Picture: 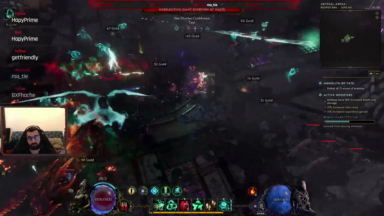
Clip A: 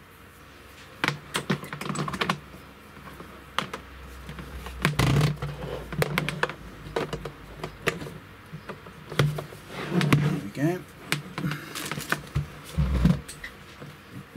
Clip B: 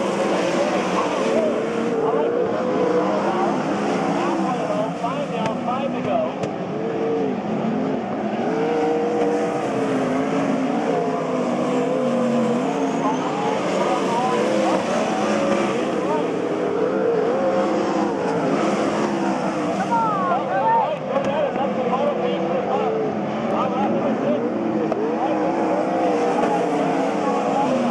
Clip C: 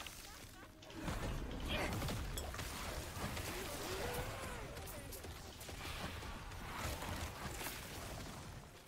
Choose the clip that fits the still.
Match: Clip C